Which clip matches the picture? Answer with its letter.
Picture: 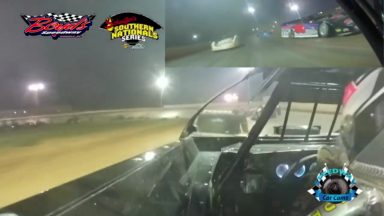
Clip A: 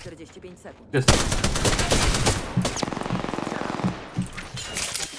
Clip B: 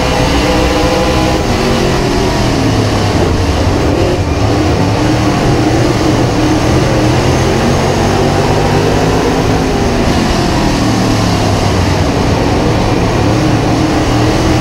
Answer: B